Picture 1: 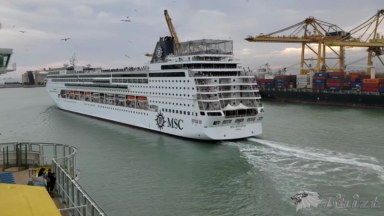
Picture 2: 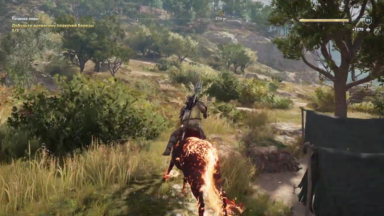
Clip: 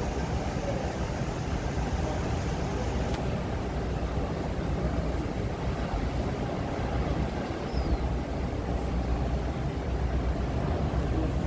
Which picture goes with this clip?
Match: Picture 1